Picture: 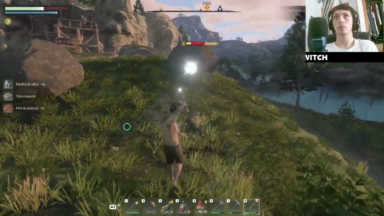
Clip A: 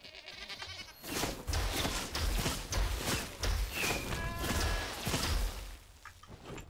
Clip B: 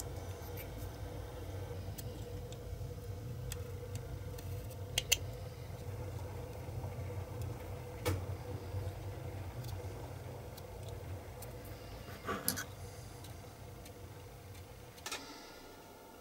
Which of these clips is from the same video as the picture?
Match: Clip A